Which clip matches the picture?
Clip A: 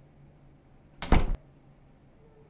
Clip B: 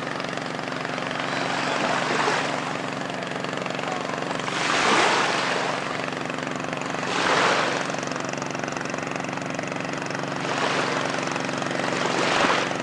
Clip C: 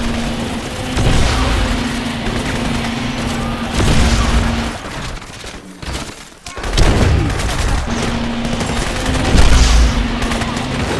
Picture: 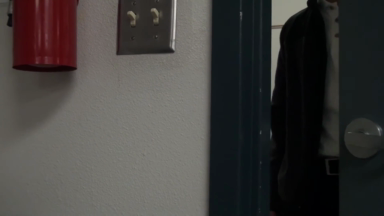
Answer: A